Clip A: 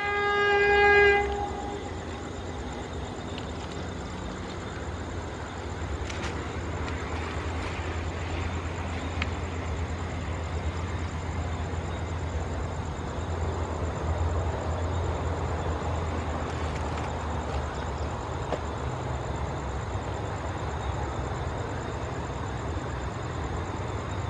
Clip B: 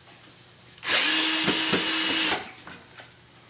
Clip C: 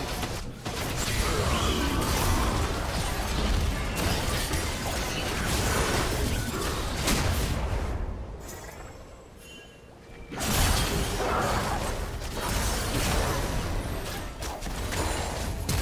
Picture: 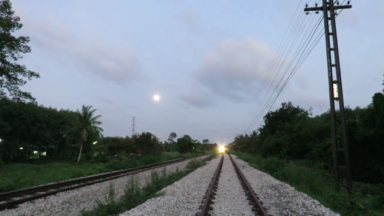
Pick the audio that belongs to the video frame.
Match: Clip A